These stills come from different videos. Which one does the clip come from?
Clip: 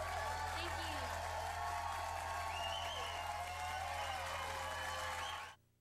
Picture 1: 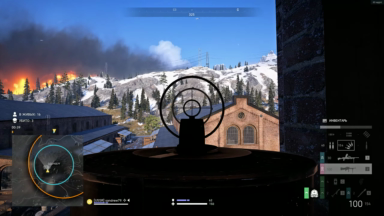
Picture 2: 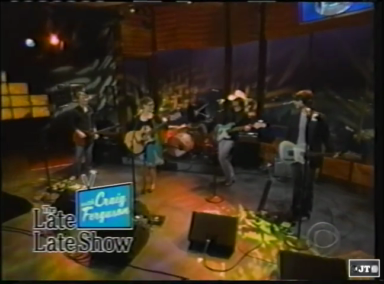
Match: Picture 2